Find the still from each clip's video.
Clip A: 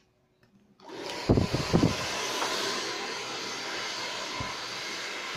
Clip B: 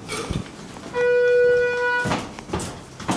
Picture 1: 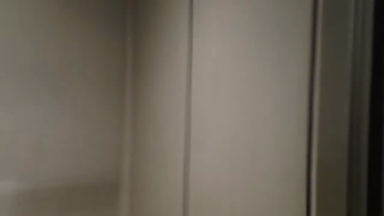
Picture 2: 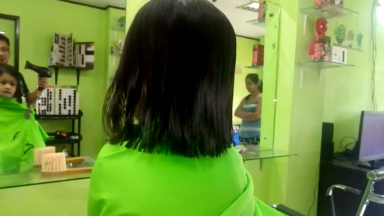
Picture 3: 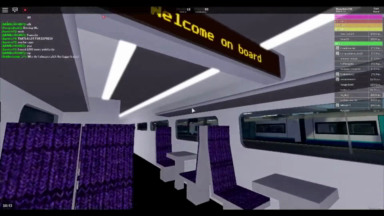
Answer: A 2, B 1